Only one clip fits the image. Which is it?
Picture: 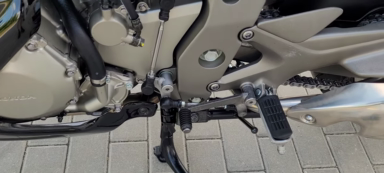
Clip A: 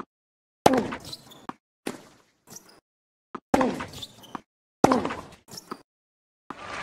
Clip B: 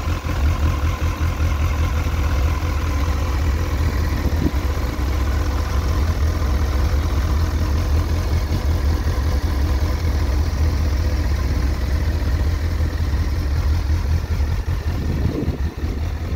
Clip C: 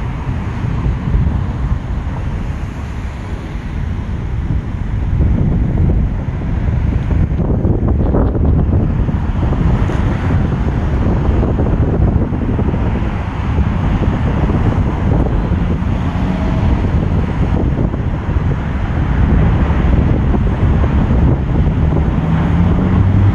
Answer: B